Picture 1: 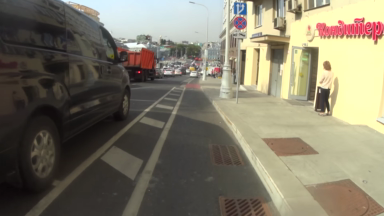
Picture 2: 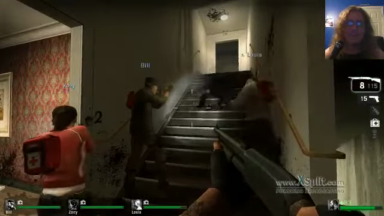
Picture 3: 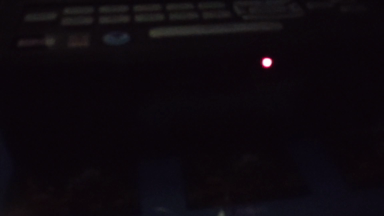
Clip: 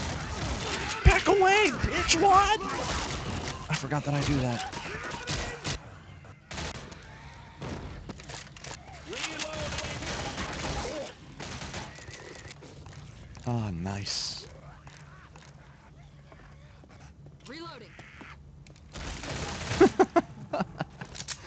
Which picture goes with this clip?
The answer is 2